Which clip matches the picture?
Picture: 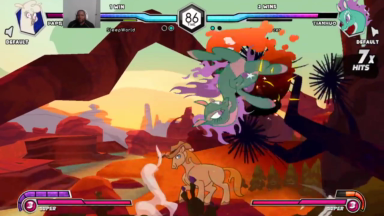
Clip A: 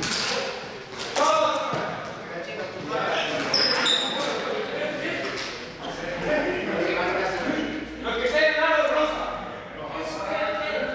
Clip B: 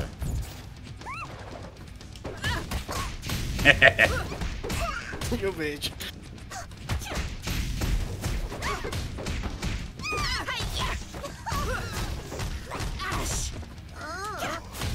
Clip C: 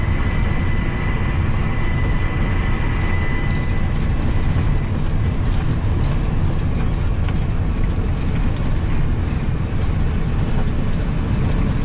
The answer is B